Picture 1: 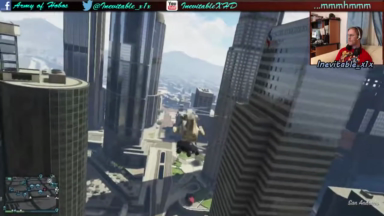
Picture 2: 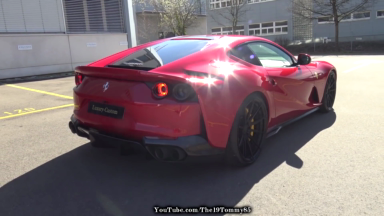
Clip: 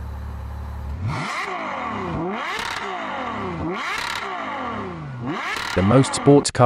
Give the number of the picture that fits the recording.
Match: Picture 2